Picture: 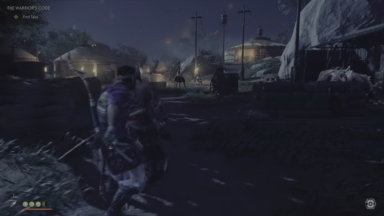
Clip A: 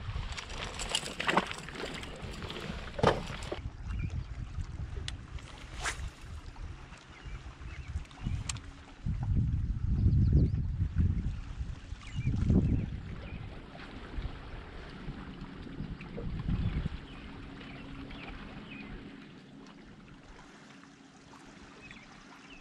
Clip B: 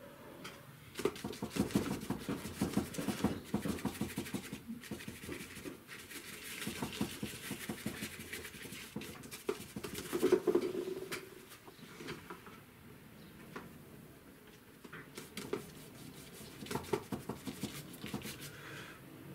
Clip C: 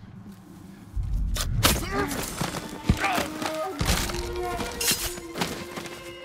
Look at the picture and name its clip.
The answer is C